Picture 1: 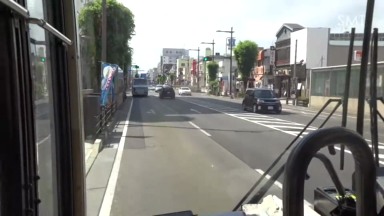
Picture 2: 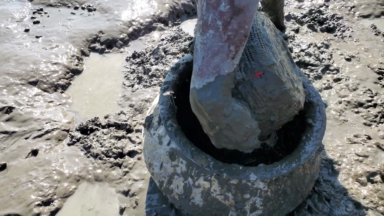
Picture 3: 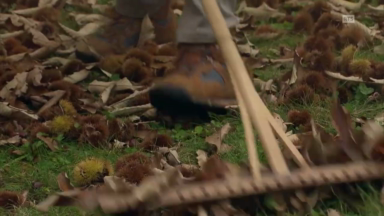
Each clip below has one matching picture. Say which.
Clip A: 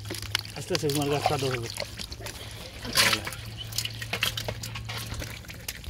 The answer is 2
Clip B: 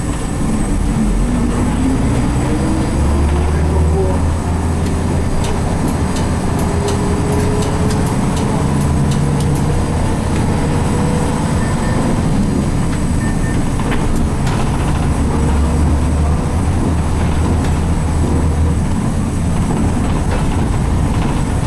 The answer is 1